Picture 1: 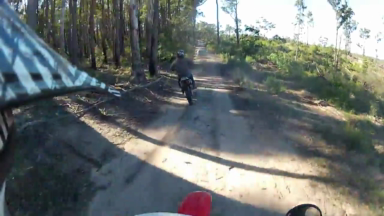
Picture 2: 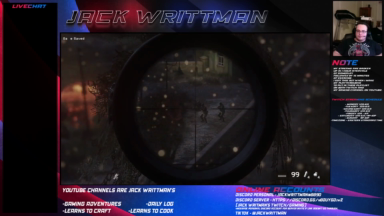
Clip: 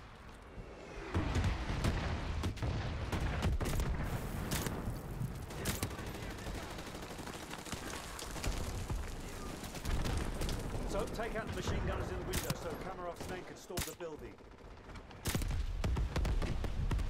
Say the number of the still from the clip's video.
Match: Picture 2